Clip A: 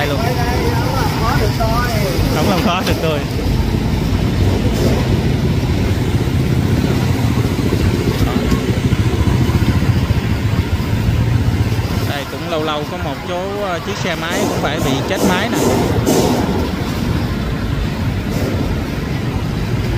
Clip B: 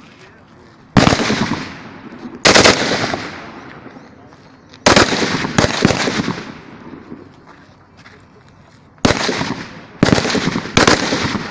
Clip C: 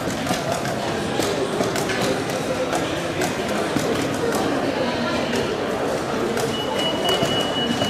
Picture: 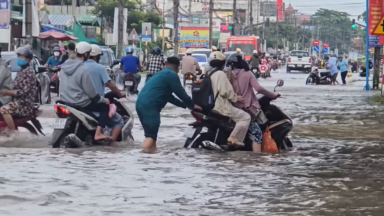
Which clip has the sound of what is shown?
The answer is A